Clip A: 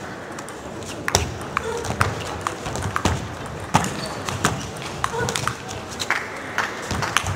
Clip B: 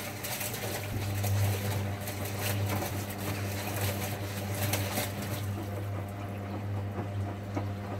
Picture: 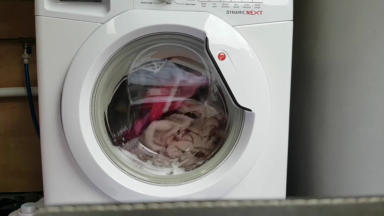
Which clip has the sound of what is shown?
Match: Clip B